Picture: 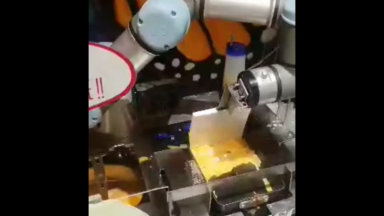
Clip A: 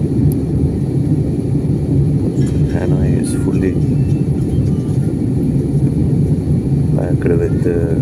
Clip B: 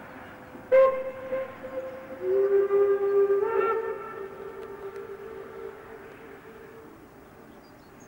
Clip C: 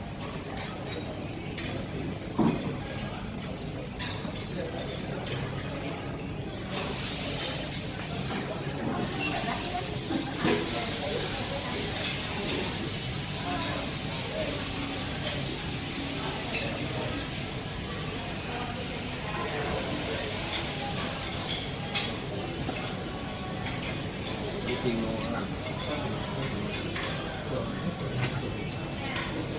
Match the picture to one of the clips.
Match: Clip C